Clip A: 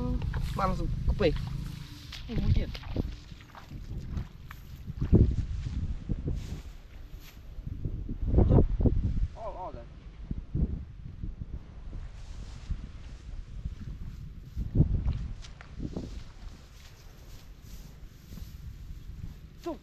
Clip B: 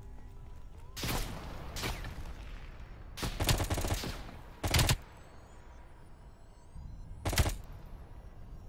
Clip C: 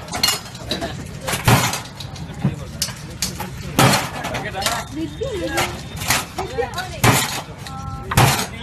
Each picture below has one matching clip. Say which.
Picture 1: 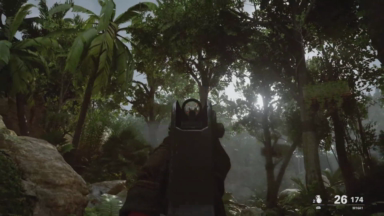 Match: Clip B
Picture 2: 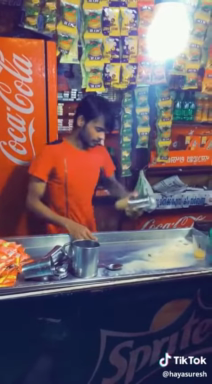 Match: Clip C